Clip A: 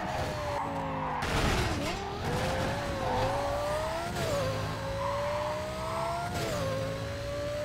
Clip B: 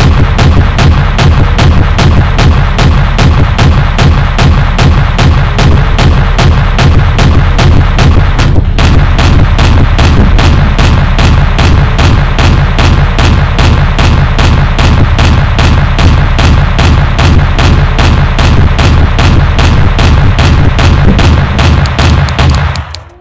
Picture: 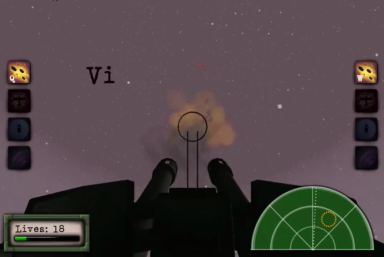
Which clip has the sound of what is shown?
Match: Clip B